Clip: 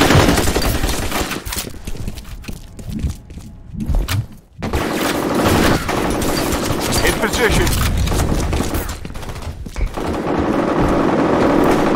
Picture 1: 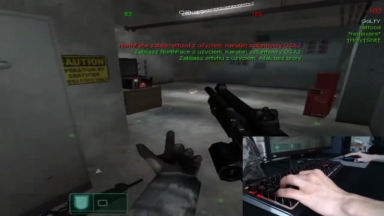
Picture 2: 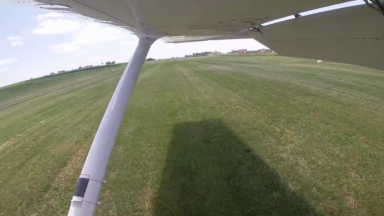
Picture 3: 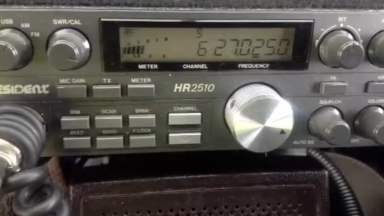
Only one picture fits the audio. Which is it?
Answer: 1